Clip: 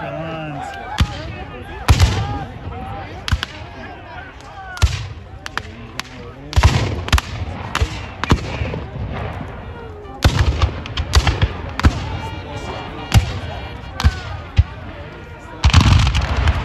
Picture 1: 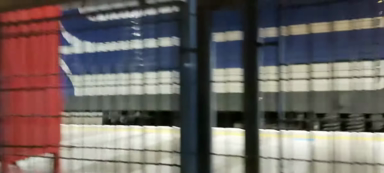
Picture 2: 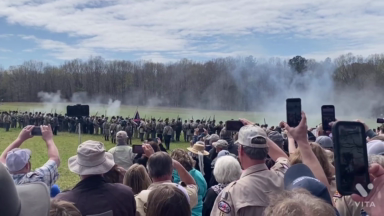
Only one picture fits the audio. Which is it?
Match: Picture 2